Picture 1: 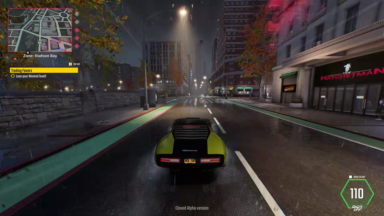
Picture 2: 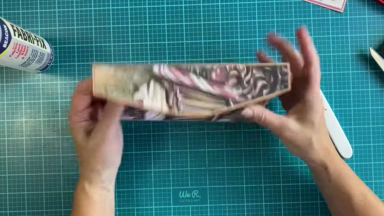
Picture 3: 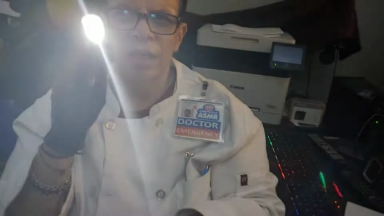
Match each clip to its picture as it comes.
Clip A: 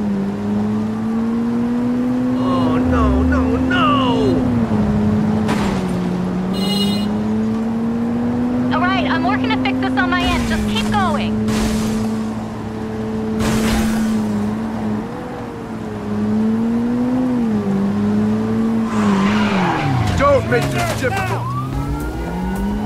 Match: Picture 1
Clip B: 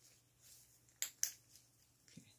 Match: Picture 3